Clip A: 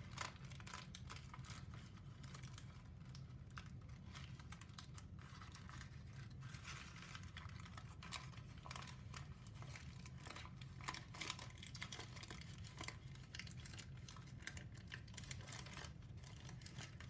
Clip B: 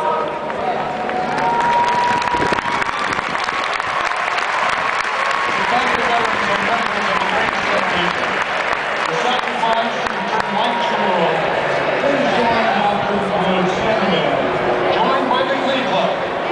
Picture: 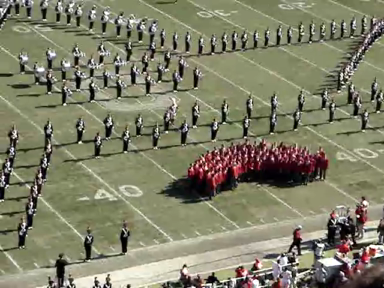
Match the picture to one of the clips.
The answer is B